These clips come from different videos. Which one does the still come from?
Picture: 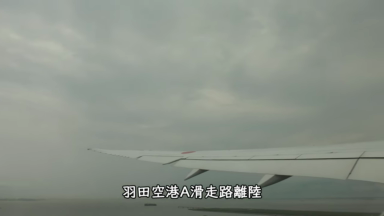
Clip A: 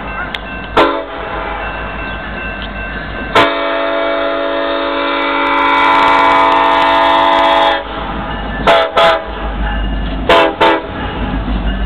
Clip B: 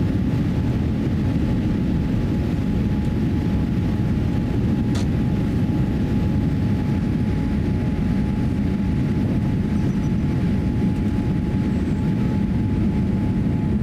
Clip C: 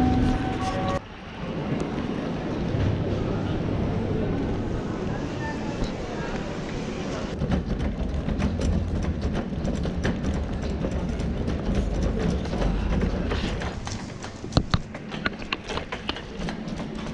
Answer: B